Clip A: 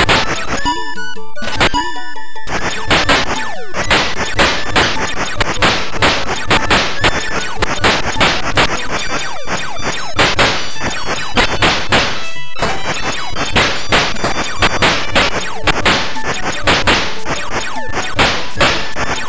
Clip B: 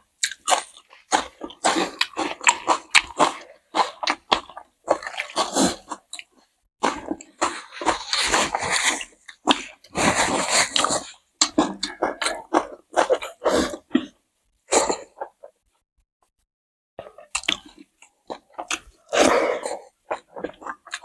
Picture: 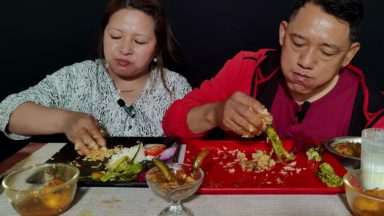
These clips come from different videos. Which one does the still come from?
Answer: B